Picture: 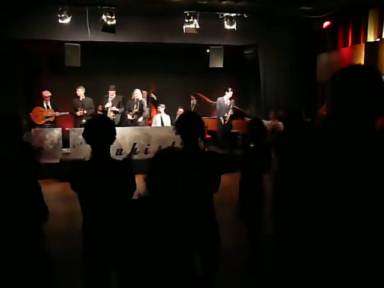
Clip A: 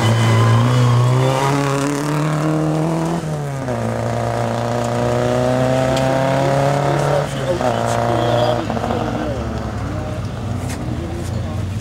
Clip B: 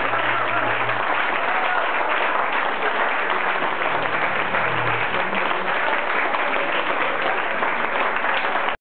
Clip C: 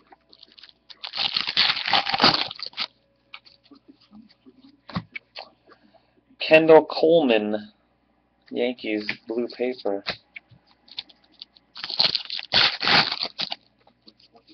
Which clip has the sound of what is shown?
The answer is B